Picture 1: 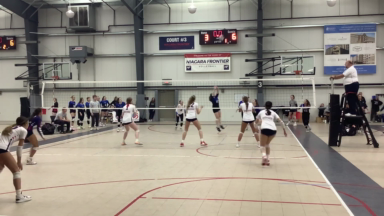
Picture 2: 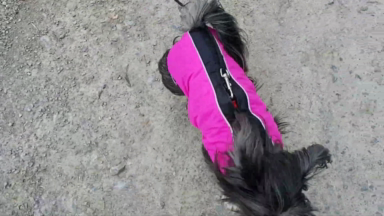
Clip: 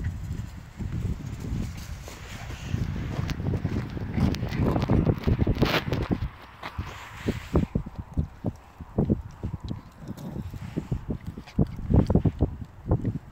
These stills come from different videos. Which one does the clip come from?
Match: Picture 2